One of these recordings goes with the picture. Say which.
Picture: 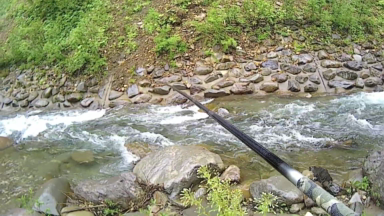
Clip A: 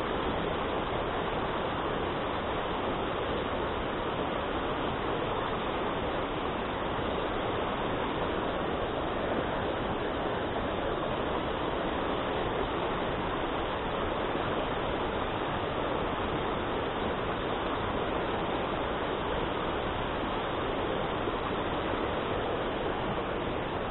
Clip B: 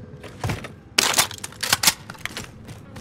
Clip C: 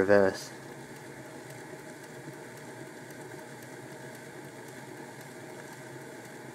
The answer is A